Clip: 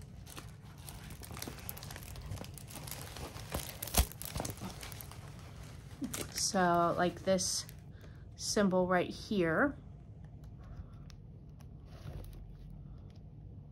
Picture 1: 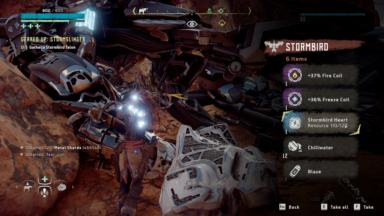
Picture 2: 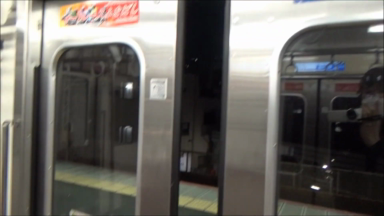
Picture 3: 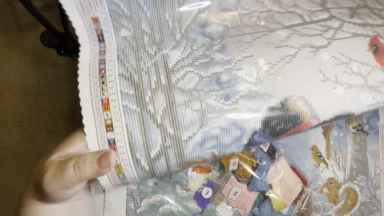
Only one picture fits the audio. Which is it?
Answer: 3